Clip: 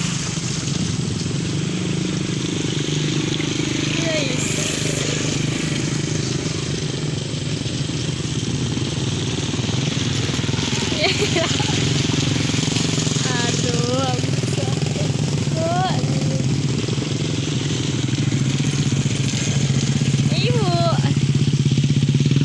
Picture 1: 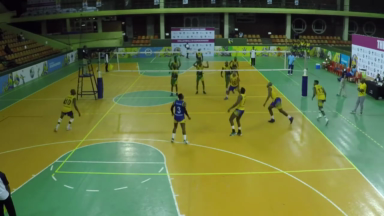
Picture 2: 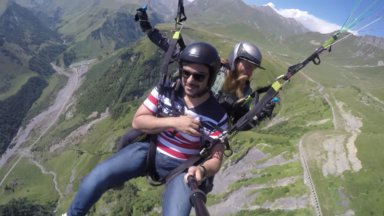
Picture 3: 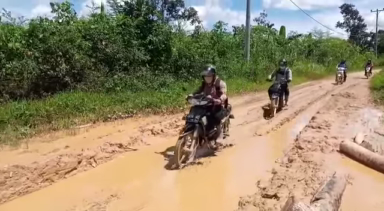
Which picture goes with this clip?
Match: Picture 3